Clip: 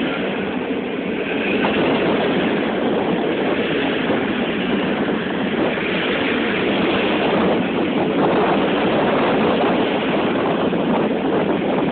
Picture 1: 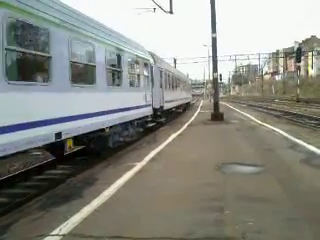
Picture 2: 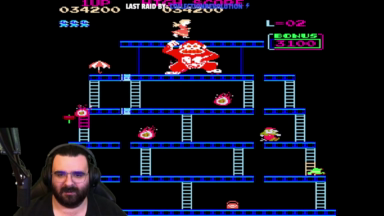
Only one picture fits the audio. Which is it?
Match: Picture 1